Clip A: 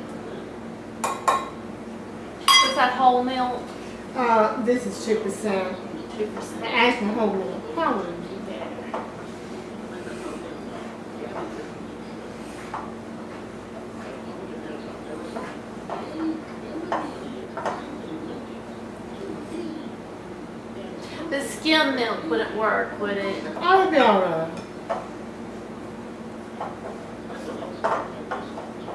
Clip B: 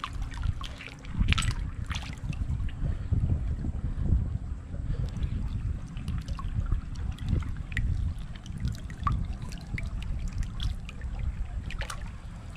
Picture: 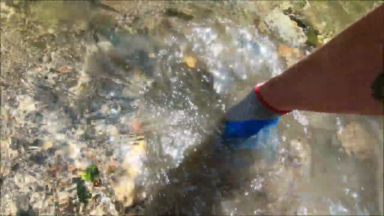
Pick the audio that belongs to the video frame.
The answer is B